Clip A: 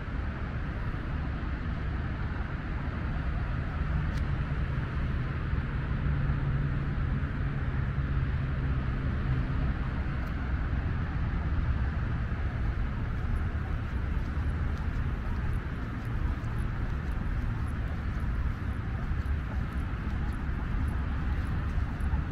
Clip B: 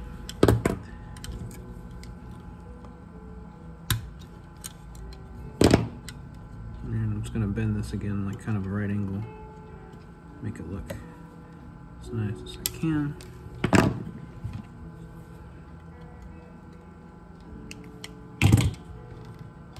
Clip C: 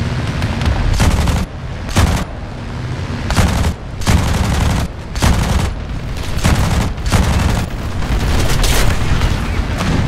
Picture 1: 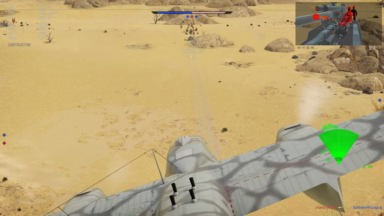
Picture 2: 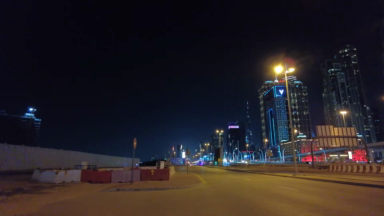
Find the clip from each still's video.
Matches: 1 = C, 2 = A